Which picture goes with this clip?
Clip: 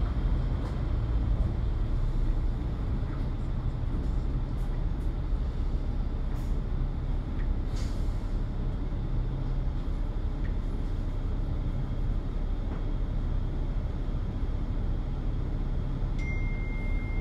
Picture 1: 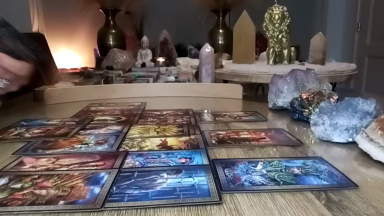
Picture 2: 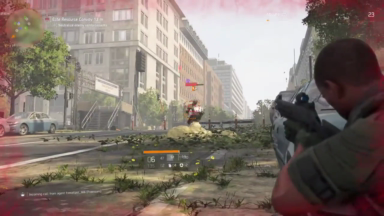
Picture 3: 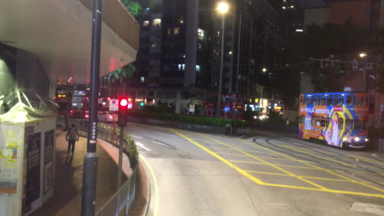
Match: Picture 3